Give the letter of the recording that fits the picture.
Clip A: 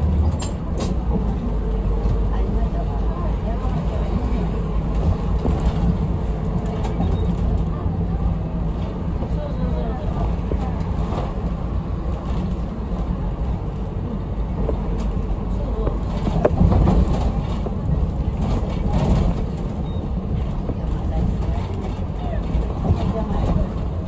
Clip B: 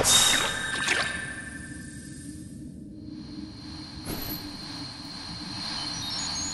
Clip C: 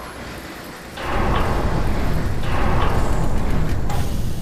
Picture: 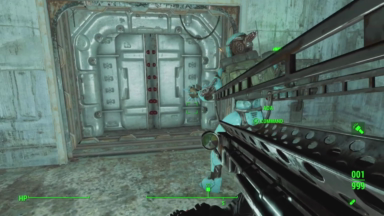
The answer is C